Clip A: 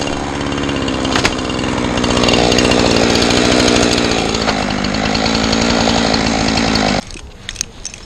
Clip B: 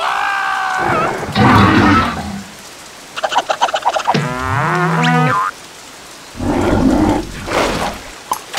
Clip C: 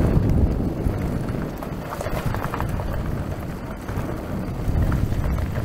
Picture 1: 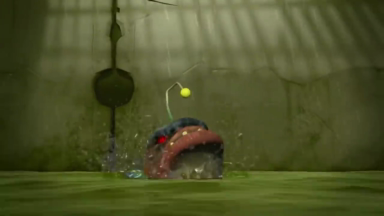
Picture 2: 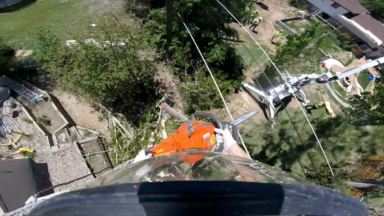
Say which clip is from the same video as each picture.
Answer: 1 B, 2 A